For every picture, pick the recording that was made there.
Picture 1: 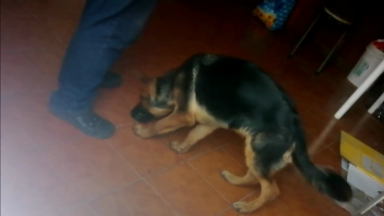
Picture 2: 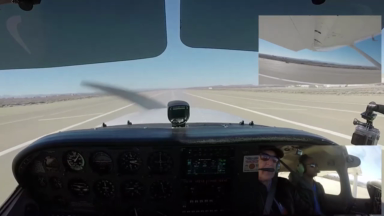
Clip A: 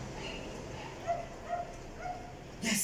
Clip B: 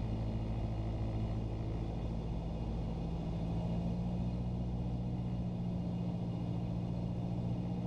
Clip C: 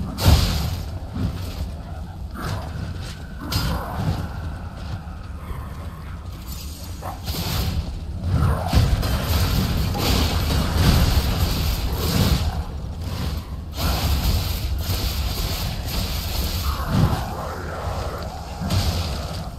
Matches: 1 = A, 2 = B